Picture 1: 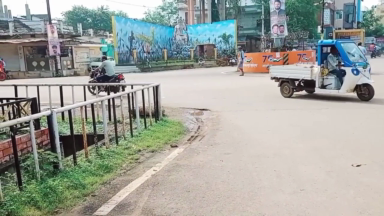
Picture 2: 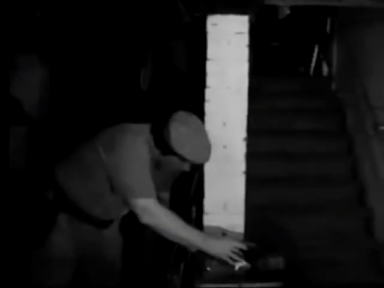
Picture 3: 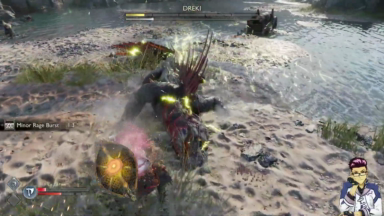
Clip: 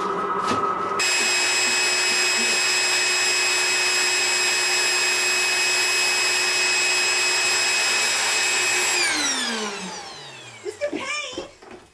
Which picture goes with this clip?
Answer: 2